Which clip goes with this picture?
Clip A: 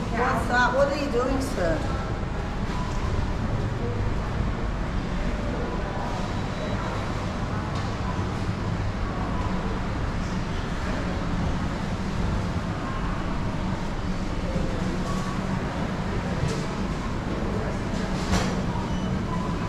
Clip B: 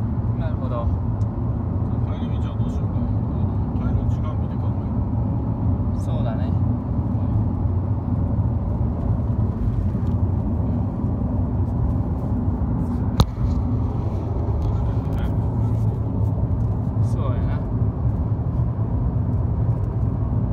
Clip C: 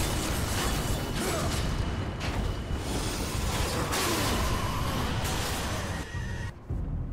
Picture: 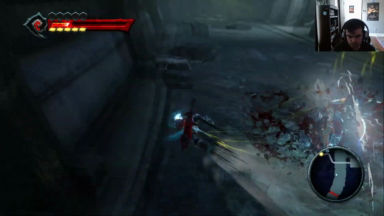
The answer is C